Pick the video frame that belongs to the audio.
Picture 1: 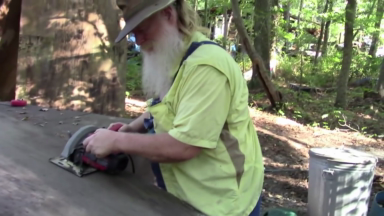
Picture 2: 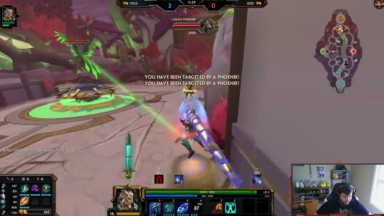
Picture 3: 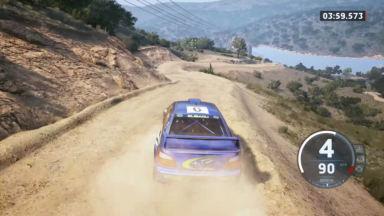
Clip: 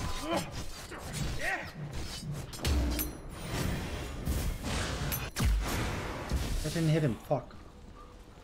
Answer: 2